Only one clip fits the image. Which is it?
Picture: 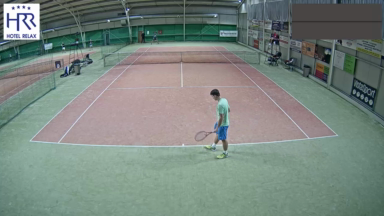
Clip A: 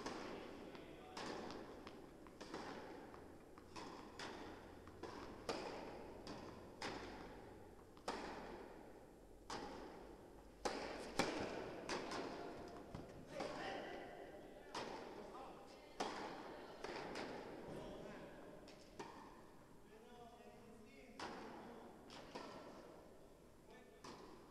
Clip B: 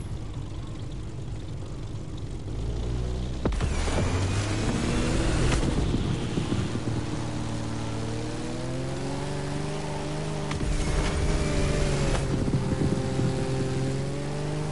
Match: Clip A